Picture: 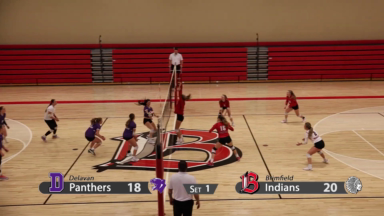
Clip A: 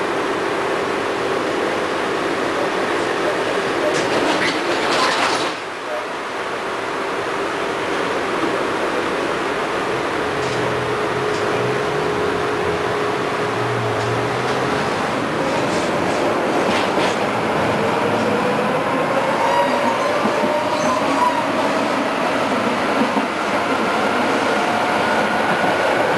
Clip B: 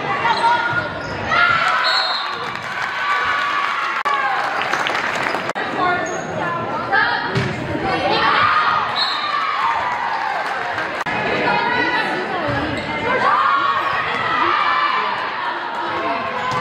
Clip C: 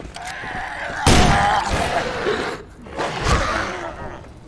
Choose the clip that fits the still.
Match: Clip B